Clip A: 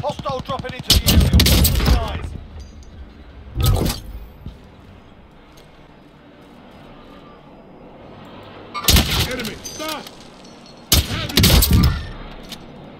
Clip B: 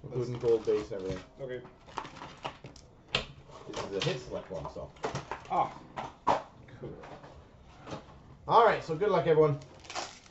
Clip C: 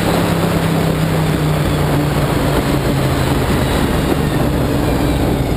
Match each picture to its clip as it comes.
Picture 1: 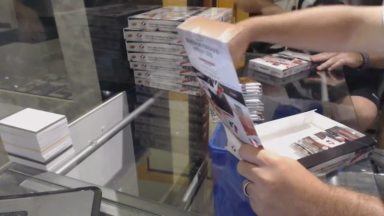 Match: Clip B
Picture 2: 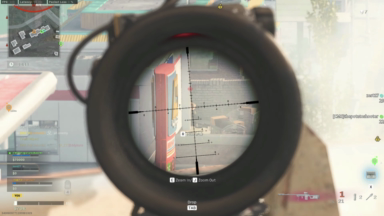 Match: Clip A